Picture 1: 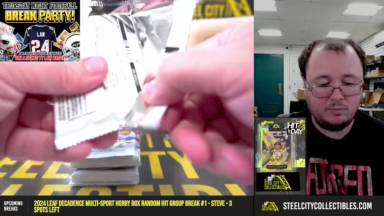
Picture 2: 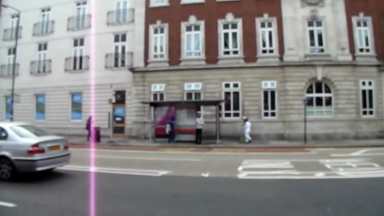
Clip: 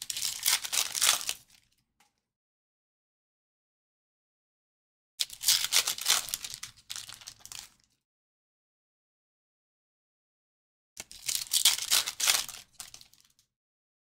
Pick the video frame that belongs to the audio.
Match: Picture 1